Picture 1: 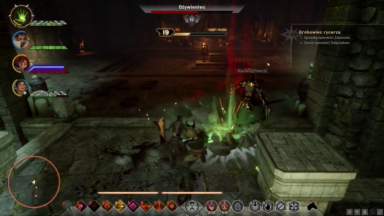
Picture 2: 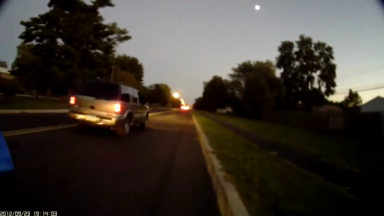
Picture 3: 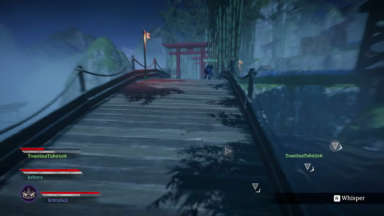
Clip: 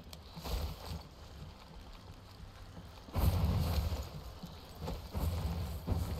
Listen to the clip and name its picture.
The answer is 3